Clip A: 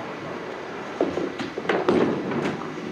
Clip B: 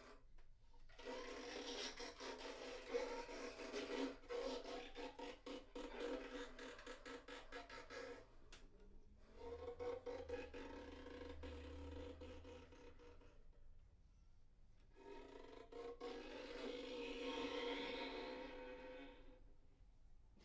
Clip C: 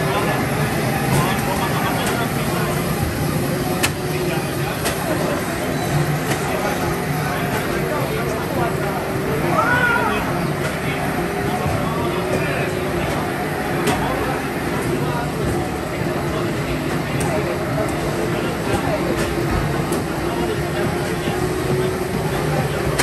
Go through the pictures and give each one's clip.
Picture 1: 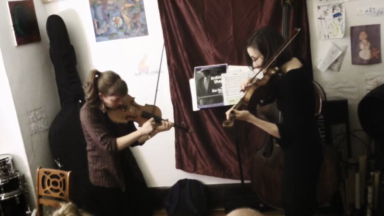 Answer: B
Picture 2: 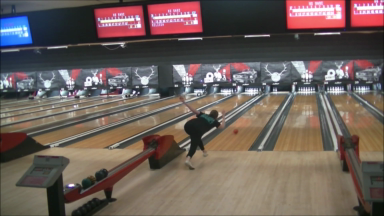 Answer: A